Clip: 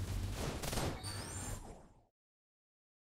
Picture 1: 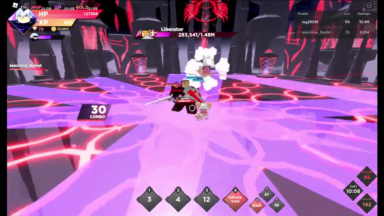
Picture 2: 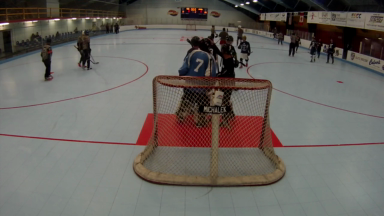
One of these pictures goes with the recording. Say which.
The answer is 1